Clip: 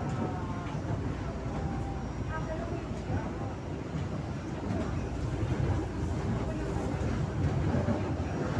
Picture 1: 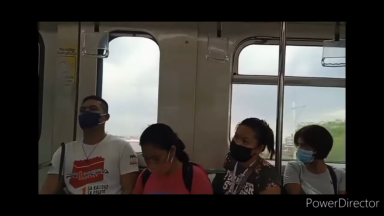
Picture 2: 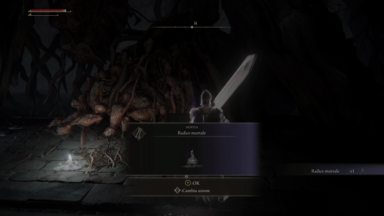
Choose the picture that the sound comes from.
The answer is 1